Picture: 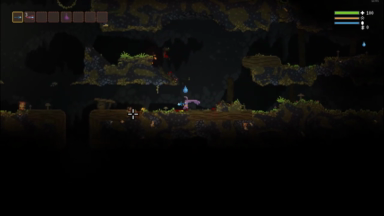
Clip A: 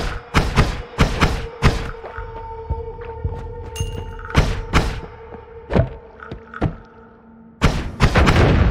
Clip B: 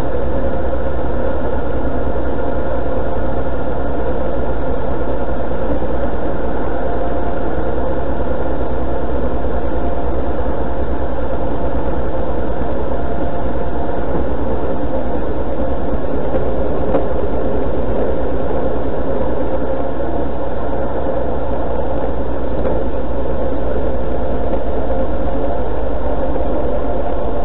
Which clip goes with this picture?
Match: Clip A